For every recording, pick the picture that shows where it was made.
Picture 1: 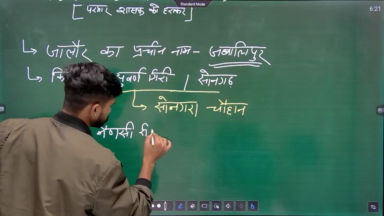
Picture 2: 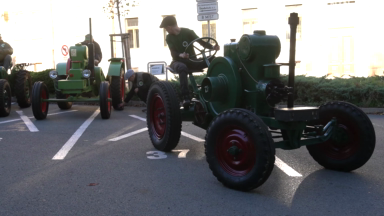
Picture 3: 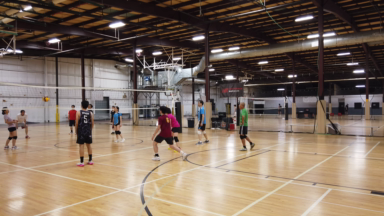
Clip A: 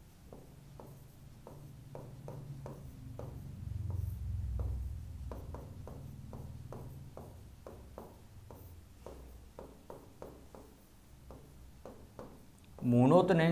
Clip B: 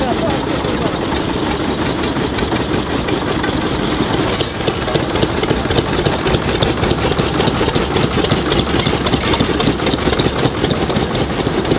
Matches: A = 1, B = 2